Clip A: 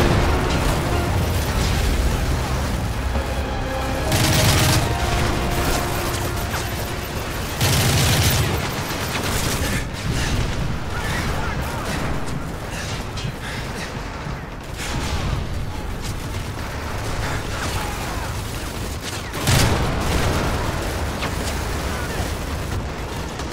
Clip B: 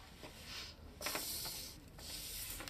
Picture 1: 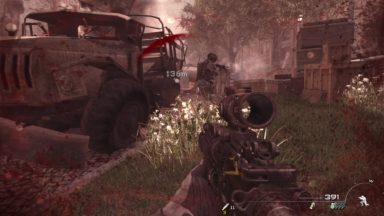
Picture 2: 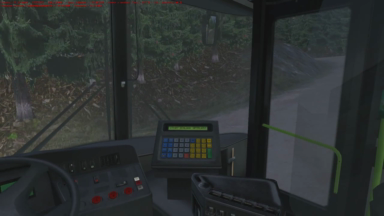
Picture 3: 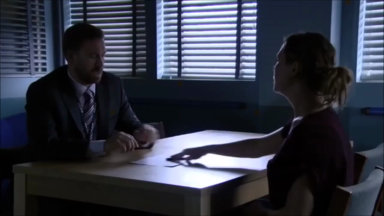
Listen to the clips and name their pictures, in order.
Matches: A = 1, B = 3